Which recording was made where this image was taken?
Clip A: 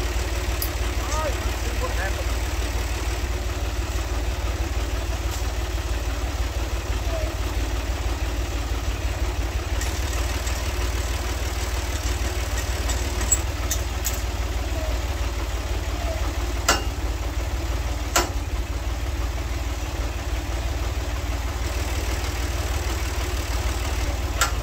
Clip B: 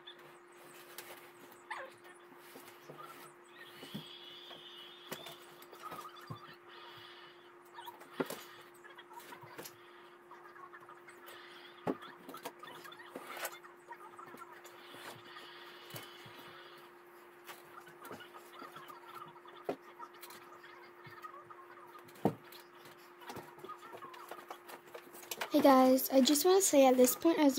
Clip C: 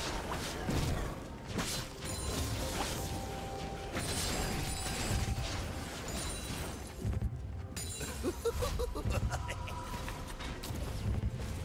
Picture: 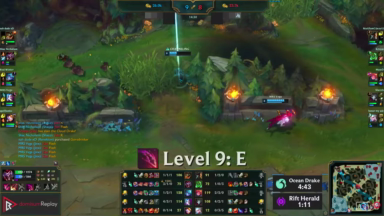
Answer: C